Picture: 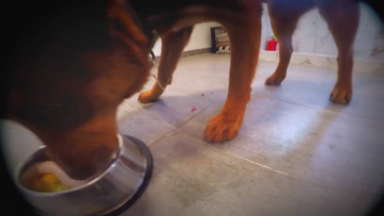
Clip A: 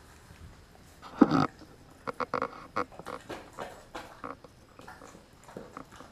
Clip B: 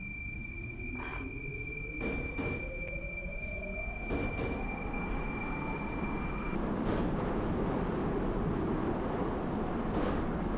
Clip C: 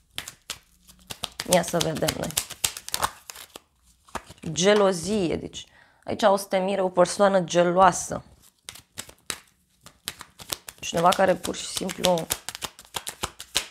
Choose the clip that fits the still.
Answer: A